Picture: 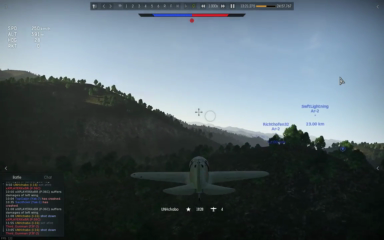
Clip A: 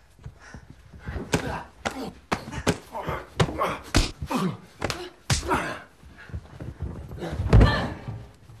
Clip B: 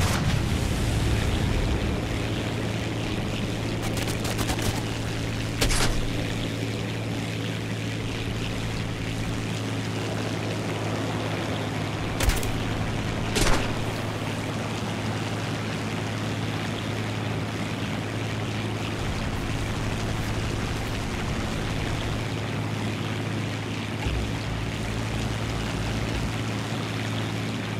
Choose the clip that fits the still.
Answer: B